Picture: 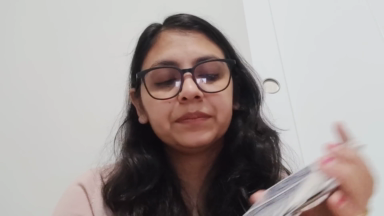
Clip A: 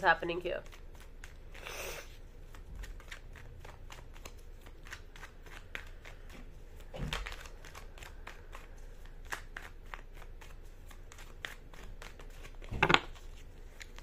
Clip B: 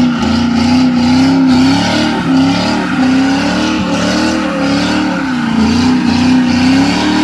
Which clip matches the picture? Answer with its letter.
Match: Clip A